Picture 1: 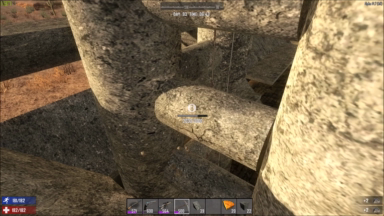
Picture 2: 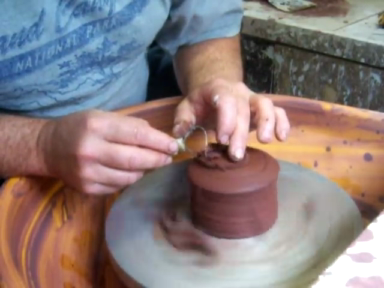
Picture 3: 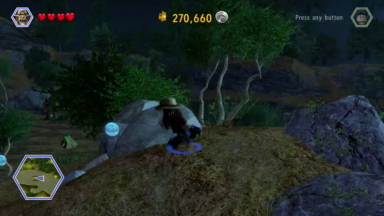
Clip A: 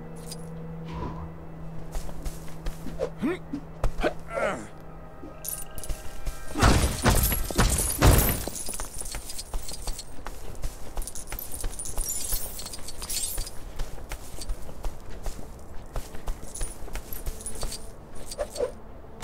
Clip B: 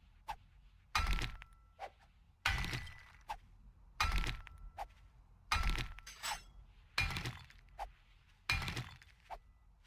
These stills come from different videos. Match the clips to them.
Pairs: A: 3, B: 1